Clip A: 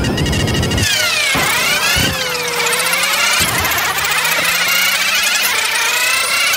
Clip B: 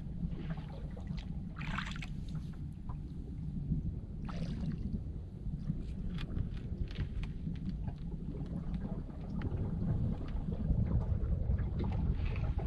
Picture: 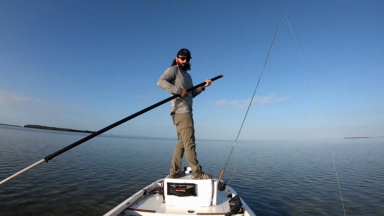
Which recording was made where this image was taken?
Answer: B